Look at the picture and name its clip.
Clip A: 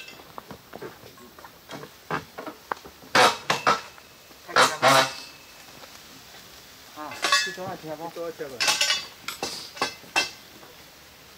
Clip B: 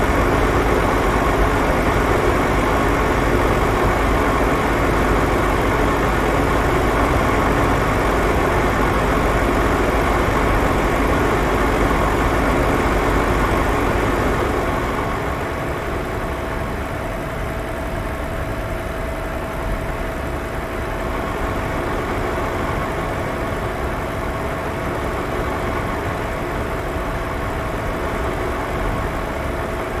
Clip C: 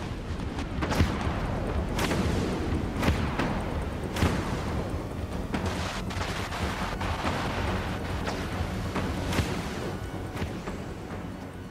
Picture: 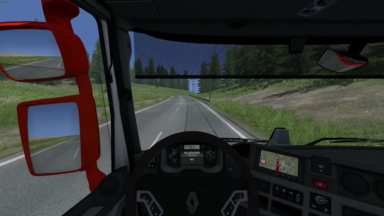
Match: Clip B